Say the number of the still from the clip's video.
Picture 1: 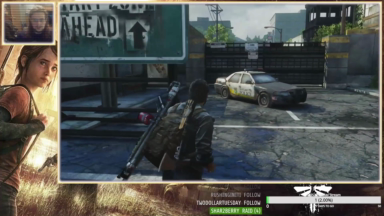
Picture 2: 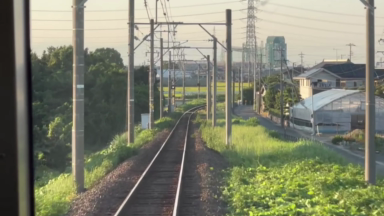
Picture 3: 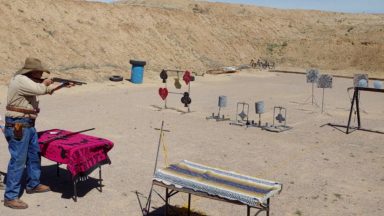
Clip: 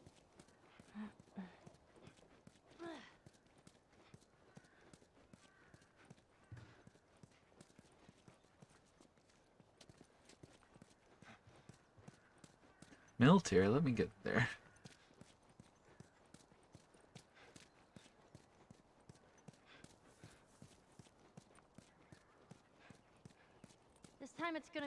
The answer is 1